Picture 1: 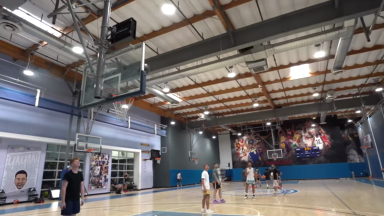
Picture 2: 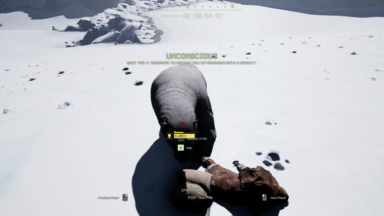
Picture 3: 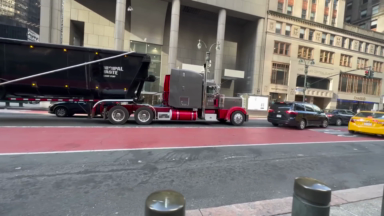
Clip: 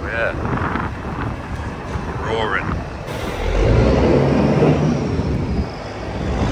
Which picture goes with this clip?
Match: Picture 3